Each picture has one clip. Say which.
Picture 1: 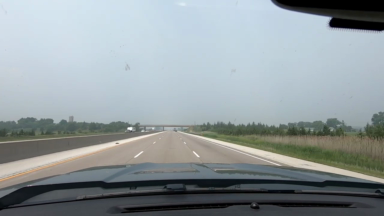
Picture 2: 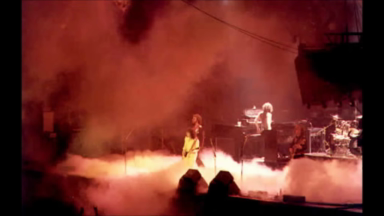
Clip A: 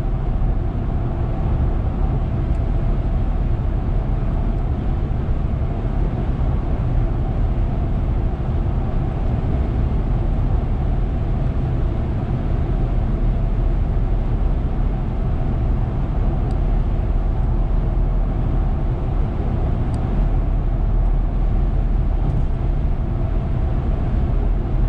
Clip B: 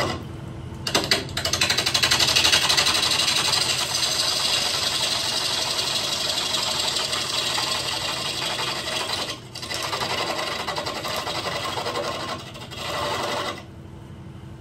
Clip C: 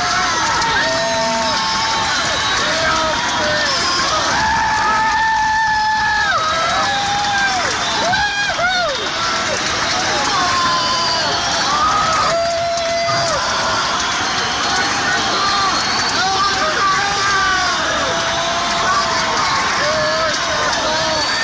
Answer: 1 A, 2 C